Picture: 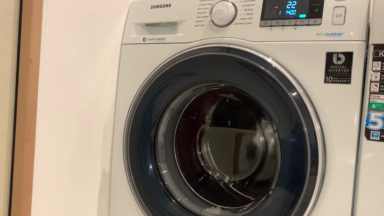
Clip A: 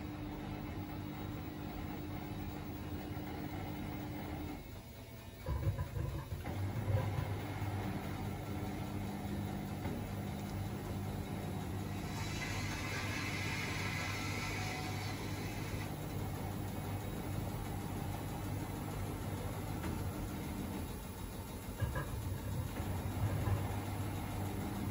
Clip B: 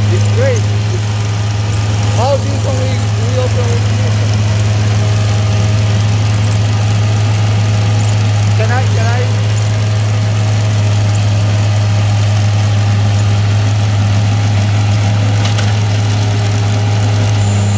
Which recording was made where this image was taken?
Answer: A